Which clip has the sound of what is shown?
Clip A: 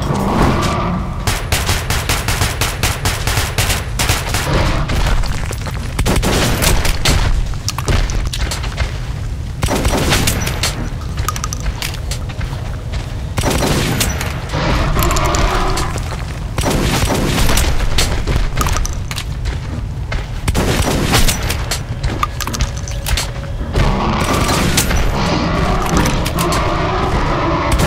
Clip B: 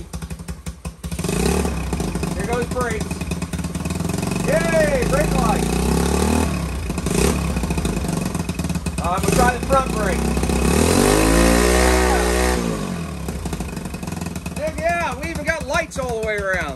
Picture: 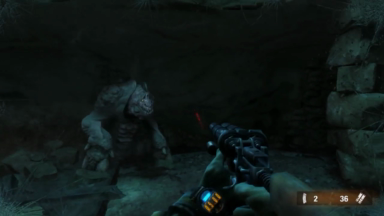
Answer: A